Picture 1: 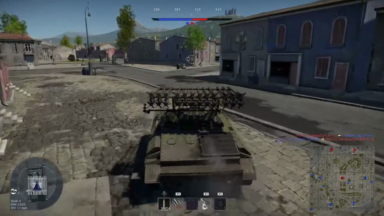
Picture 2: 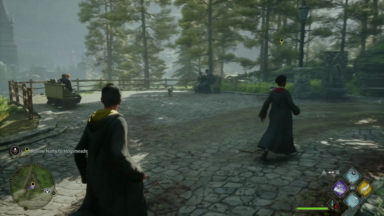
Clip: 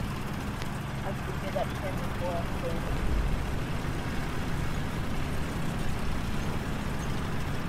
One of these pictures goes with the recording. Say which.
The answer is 1